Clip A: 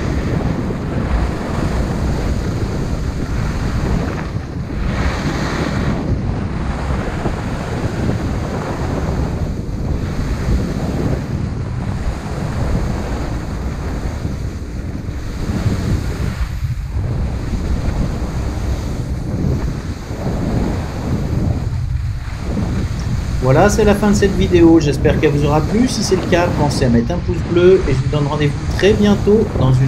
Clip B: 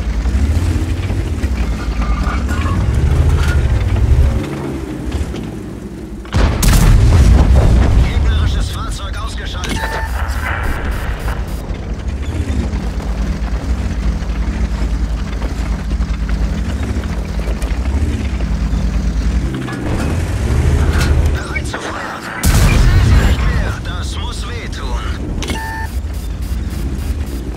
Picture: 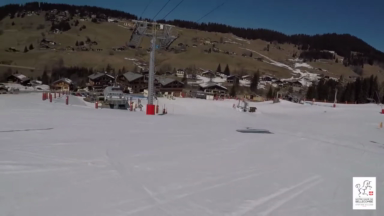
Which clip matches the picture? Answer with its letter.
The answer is A